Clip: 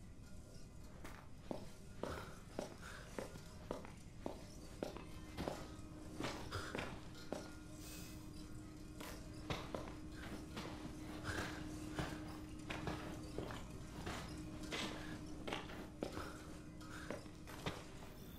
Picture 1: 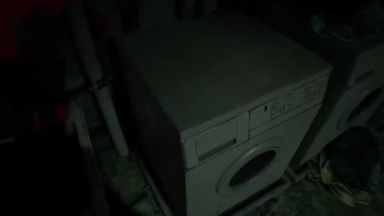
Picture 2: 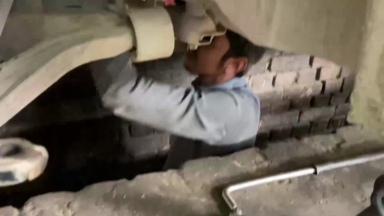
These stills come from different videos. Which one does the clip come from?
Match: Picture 1